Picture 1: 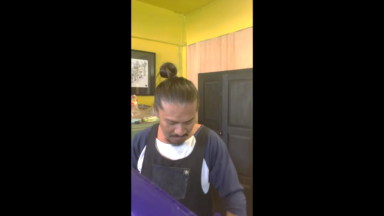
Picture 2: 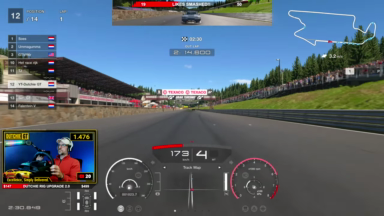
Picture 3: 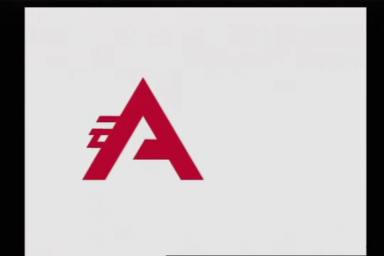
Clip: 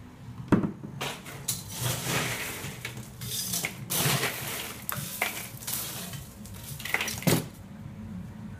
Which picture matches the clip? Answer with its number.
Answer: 1